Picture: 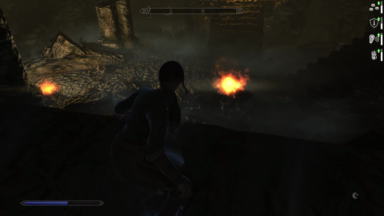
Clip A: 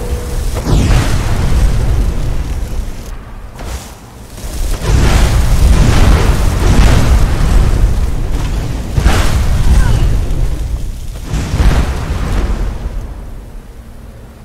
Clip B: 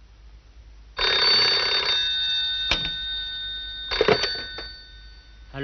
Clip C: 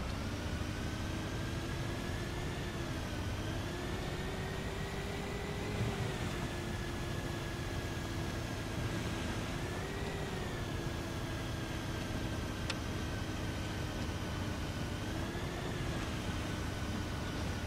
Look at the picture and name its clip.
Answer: A